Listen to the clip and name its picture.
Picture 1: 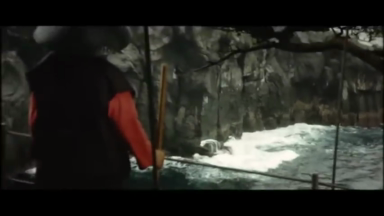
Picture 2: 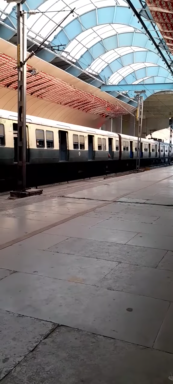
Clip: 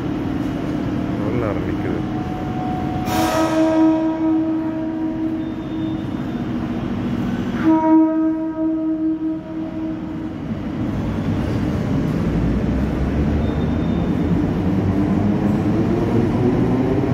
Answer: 2